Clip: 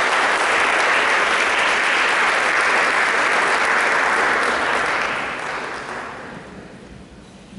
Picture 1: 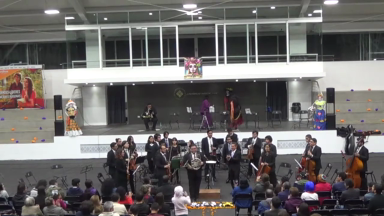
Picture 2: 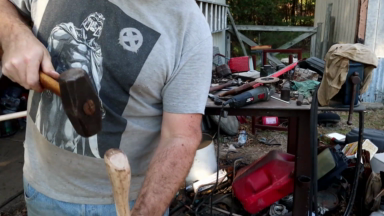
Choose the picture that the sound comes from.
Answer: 1